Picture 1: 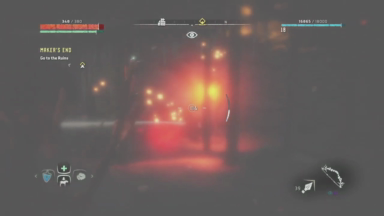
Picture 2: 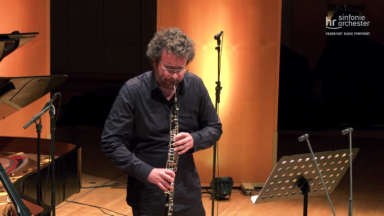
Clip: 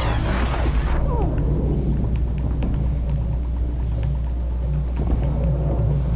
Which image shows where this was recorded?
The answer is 1